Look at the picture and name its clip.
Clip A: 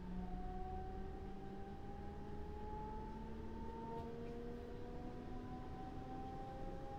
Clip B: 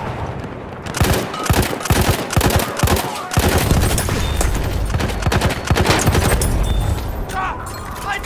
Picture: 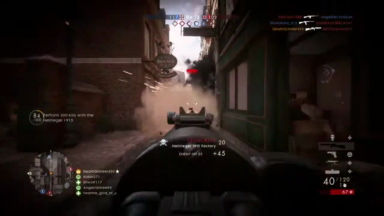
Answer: B